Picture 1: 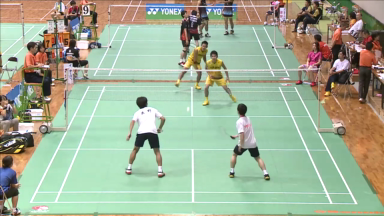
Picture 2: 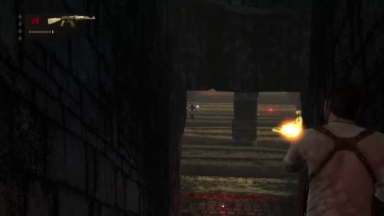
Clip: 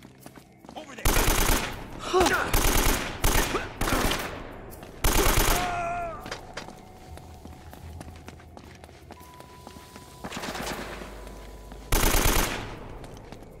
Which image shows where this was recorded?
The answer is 2